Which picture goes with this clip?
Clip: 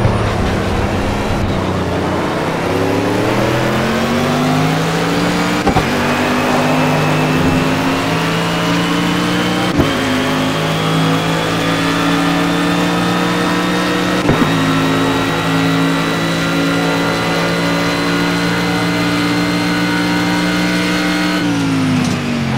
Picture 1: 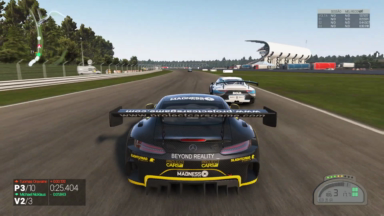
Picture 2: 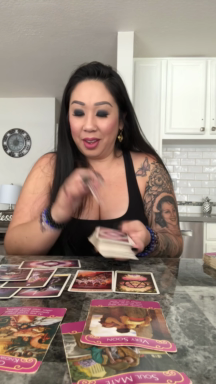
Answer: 1